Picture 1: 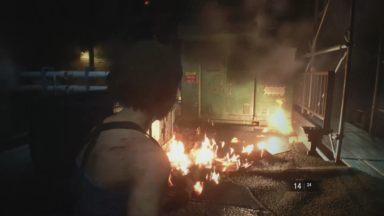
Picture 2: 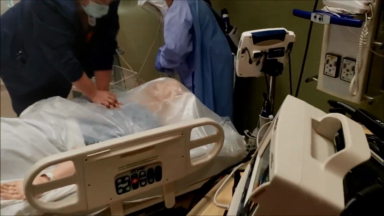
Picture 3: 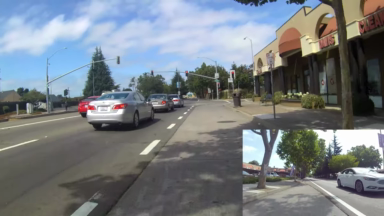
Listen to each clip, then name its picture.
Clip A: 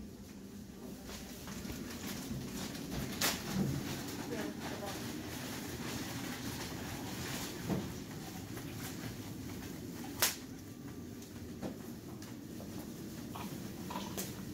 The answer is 2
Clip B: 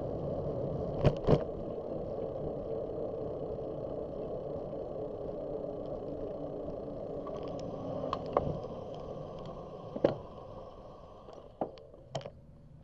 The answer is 3